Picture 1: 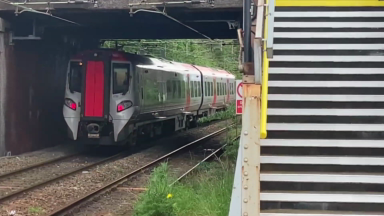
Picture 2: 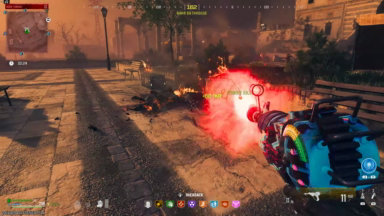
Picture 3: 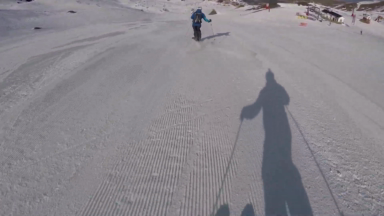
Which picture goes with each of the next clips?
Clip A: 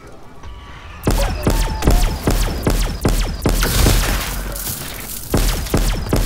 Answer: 2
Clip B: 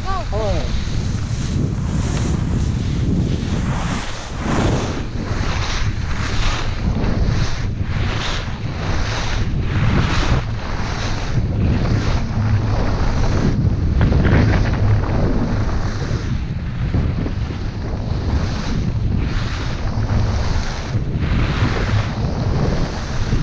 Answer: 3